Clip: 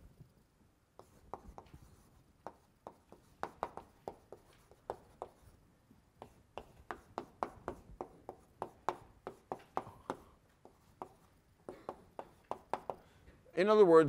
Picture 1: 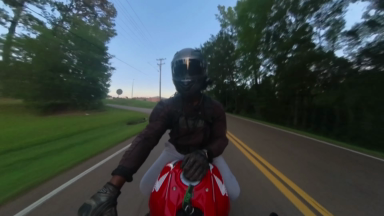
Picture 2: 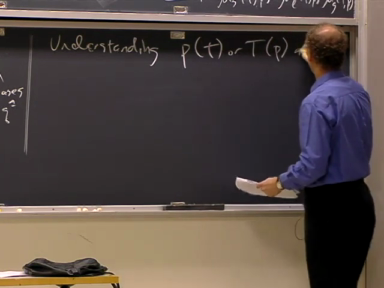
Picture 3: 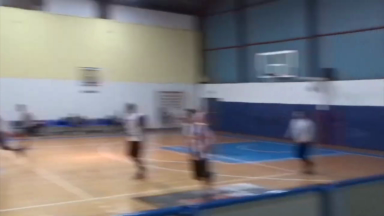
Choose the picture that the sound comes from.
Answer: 2